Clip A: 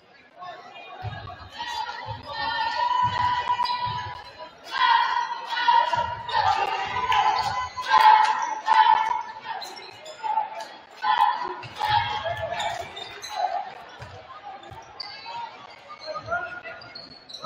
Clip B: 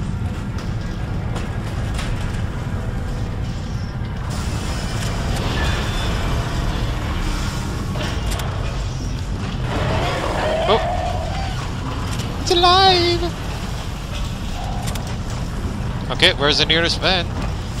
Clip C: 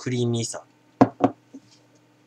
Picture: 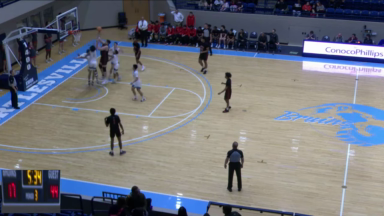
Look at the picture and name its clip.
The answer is A